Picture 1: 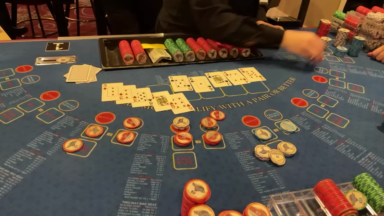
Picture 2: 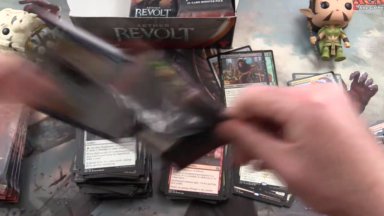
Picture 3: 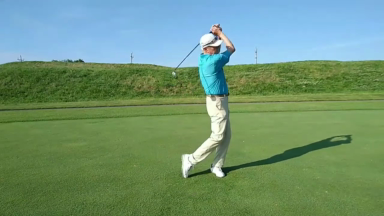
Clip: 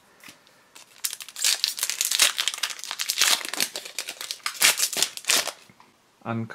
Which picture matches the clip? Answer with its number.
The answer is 2